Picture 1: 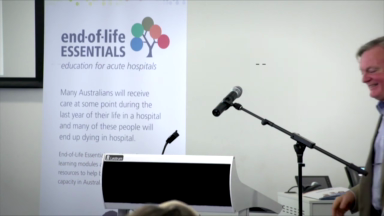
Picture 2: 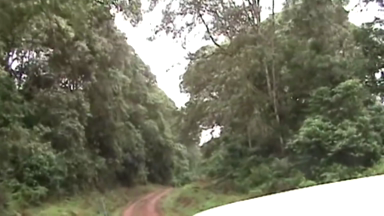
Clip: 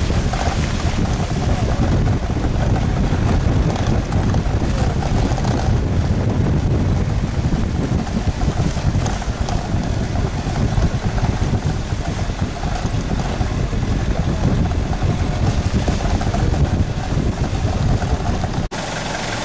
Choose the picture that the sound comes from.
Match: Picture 2